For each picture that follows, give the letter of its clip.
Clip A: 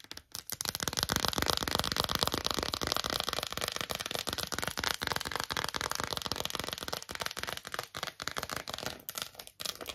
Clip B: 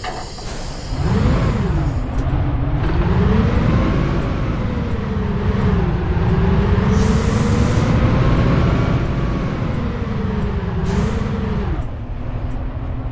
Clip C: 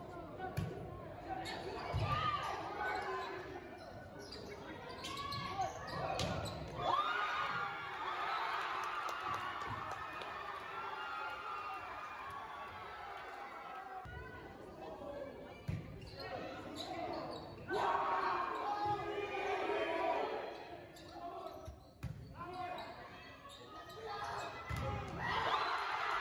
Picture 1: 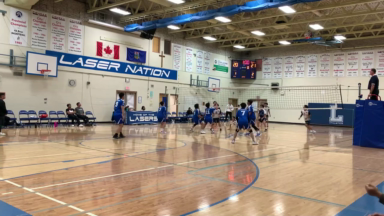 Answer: C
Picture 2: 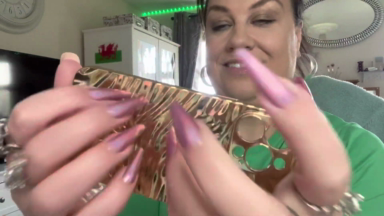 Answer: A